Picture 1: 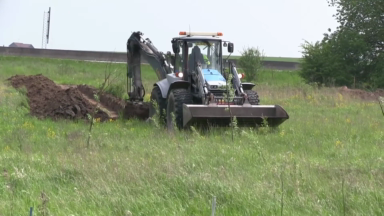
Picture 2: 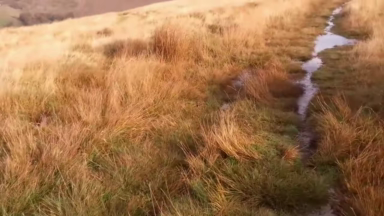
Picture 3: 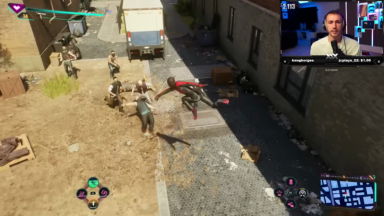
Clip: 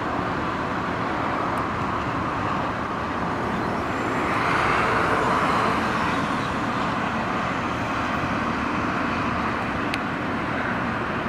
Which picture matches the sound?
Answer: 1